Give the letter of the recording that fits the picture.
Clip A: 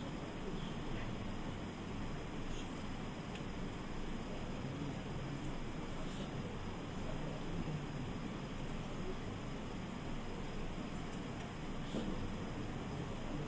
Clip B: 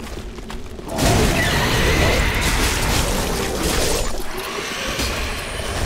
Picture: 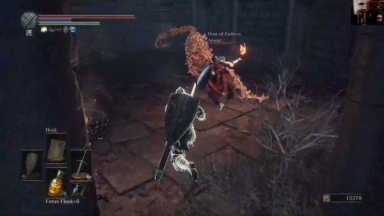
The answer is B